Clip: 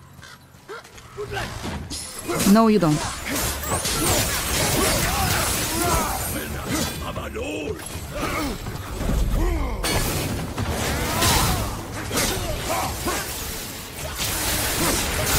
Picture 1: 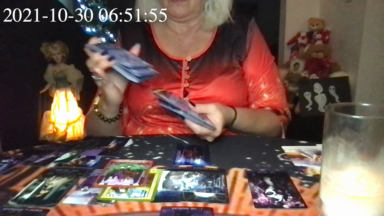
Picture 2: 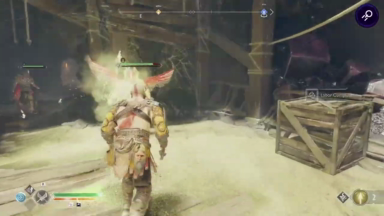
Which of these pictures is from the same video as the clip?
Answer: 2